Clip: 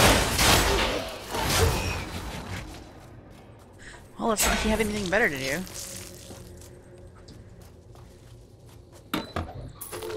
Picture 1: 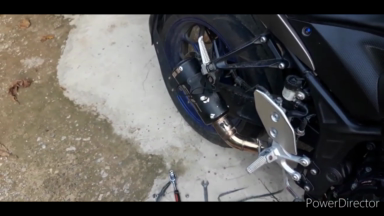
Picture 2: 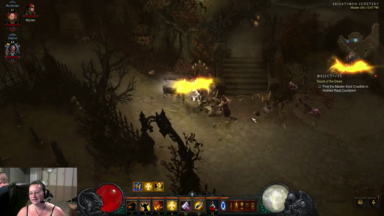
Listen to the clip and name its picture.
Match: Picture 2